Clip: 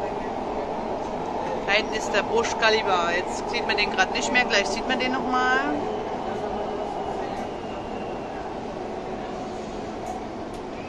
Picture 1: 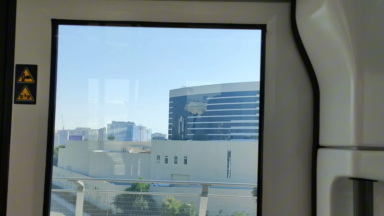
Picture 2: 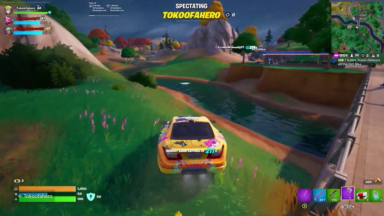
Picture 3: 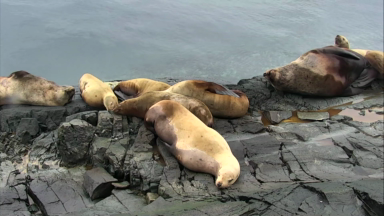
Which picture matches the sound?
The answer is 1